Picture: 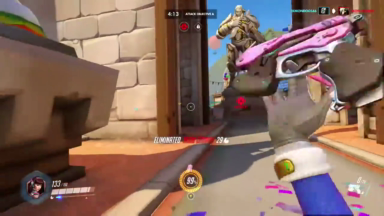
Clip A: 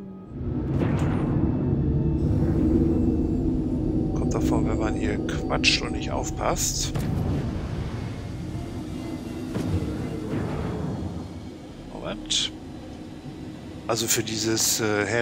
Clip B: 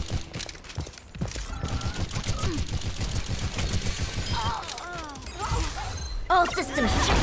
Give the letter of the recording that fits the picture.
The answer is B